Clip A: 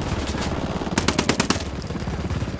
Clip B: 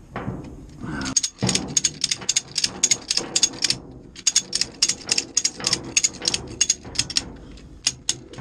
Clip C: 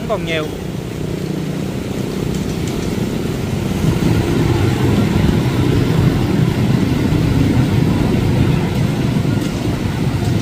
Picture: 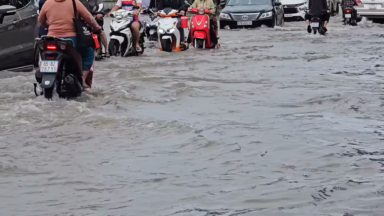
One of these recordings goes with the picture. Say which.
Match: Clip C